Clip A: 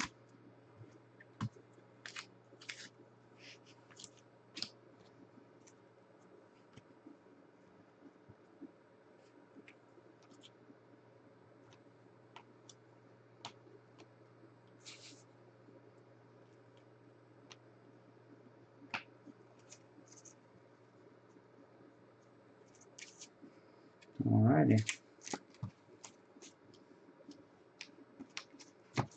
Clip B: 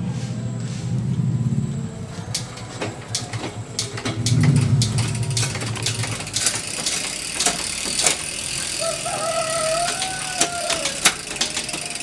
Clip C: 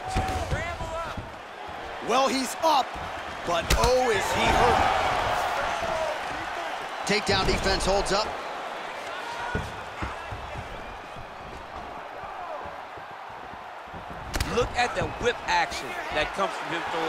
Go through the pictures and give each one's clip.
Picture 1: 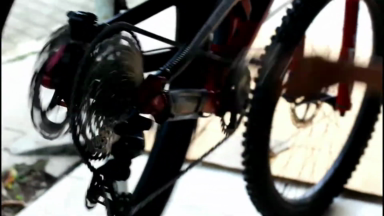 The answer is B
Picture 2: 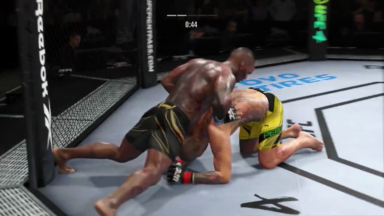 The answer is C